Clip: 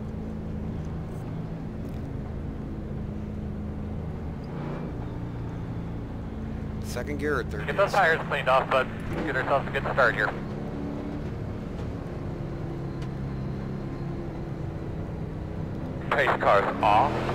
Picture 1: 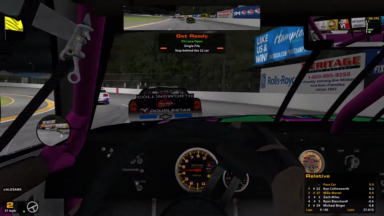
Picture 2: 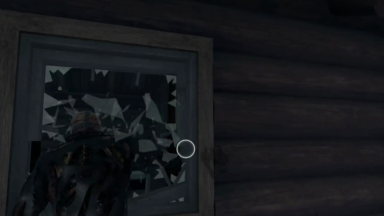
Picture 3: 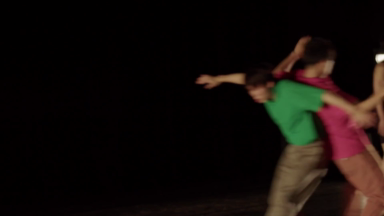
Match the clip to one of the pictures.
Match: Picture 1